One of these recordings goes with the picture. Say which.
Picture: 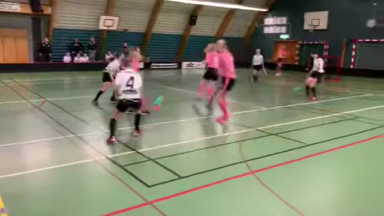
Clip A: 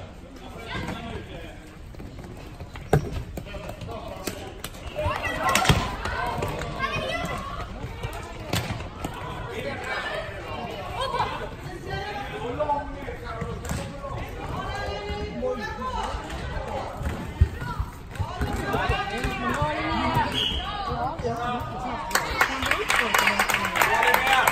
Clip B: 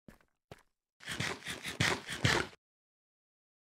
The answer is A